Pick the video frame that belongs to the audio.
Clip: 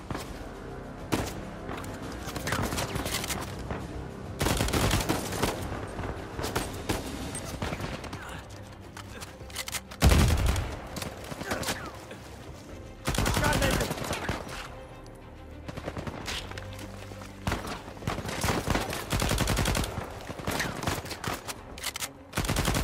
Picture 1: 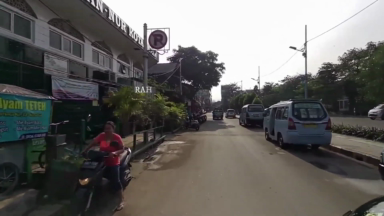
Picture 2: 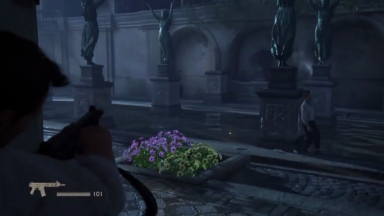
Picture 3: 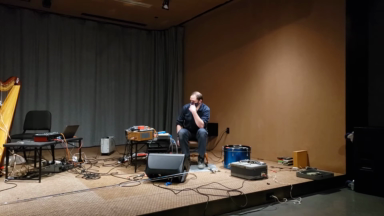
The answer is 2